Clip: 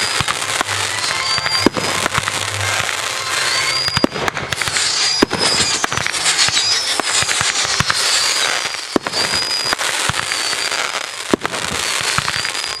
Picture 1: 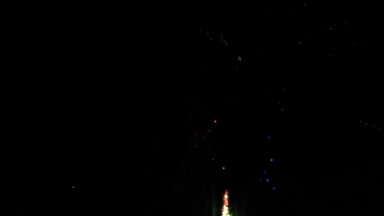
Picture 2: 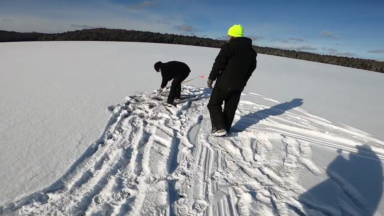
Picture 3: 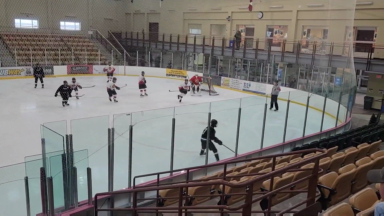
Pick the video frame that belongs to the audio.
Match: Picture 1